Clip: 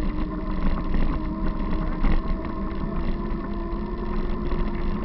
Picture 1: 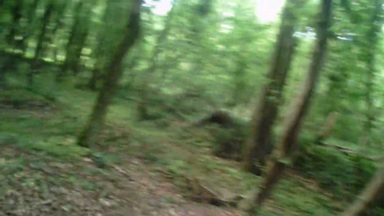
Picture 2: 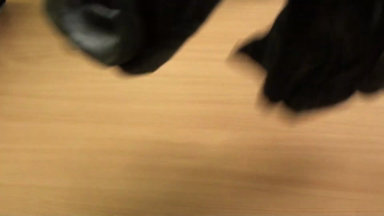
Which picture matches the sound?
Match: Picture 1